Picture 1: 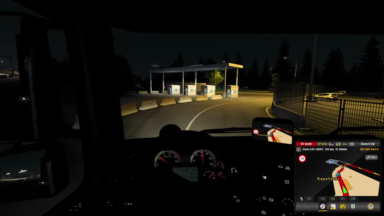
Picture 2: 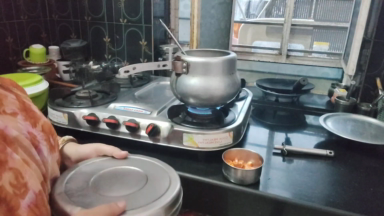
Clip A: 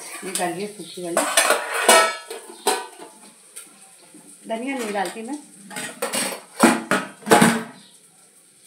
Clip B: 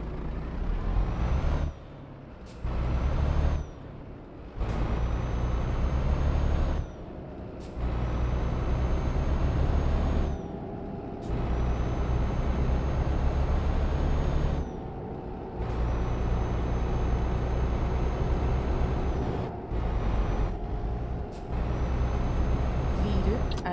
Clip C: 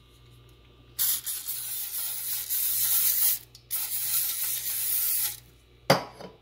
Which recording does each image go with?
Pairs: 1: B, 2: A